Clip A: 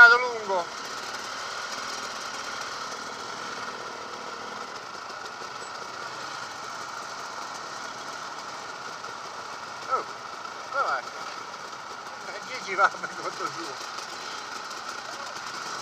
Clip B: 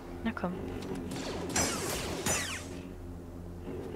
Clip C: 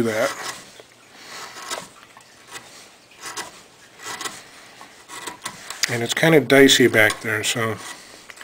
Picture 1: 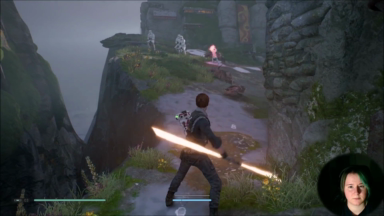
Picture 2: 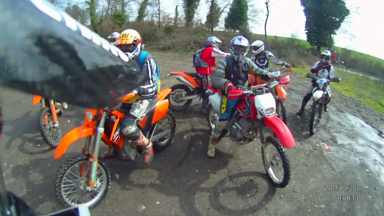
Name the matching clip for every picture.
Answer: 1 B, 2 A